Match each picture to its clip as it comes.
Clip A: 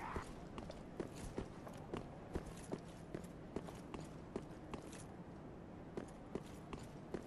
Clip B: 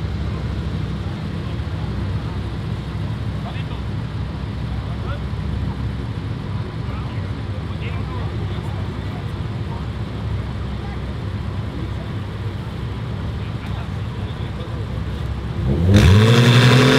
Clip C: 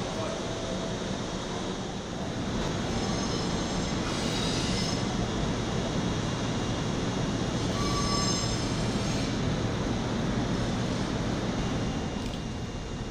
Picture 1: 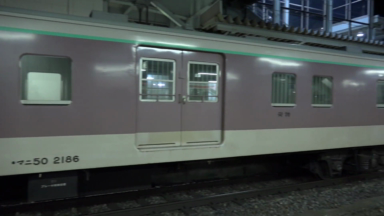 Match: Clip C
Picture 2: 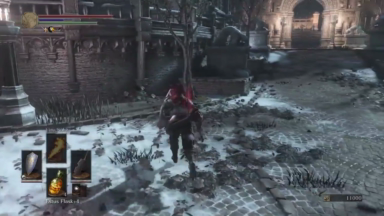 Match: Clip A